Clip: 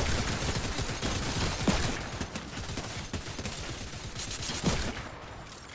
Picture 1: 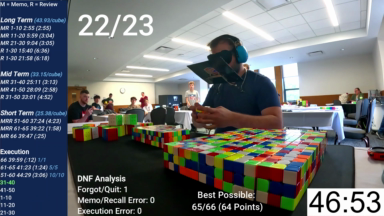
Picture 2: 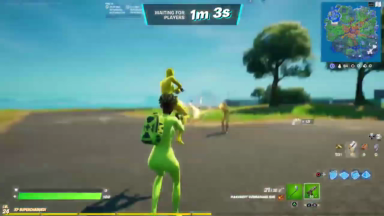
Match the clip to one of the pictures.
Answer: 2